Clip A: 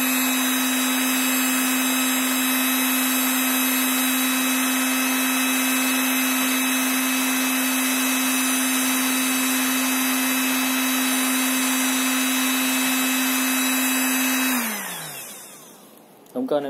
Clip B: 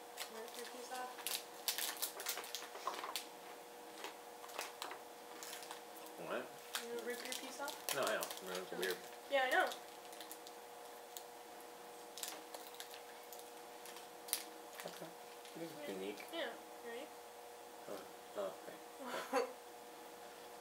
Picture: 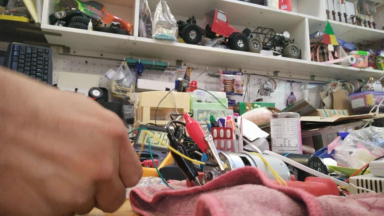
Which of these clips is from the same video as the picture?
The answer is A